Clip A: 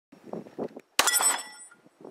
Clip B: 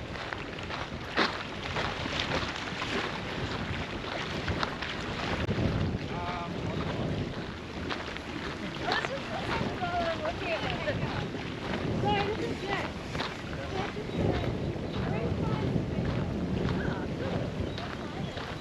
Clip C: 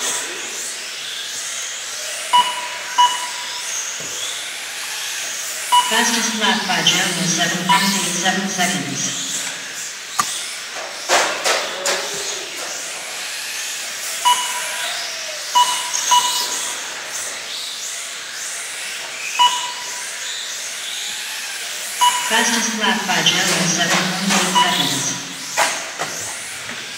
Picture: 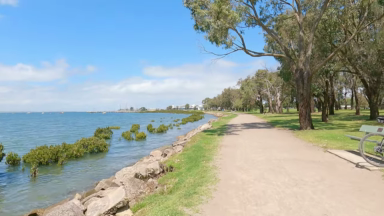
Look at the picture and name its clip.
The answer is B